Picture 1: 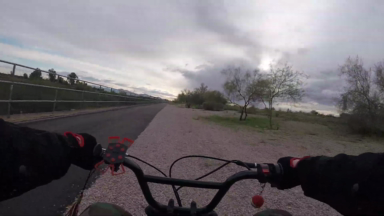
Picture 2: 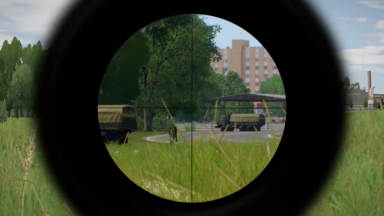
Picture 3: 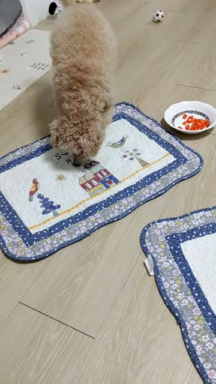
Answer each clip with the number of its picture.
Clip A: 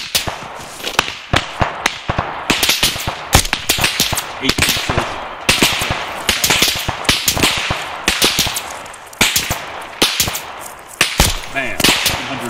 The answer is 2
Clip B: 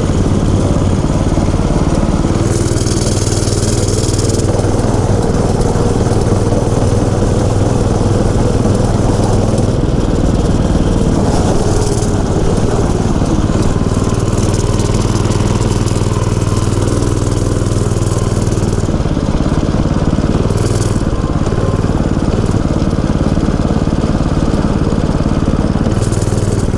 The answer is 1